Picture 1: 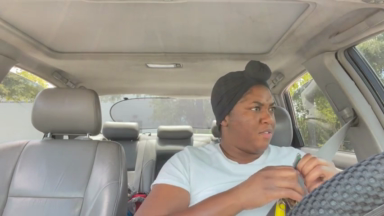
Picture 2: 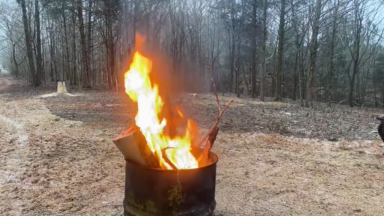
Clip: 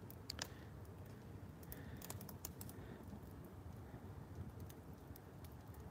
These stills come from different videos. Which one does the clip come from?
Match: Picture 2